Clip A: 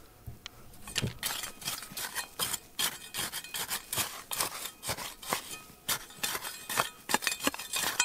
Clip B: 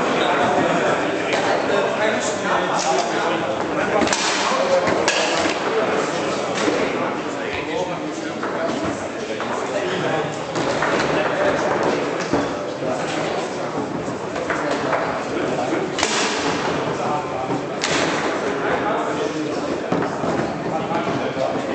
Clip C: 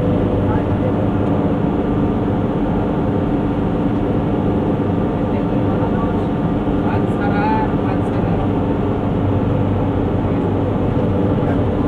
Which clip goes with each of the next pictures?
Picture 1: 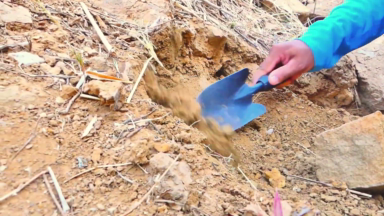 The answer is A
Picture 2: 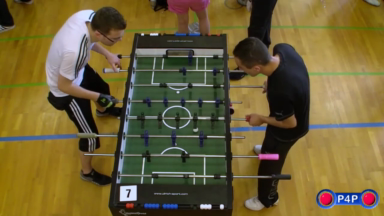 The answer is B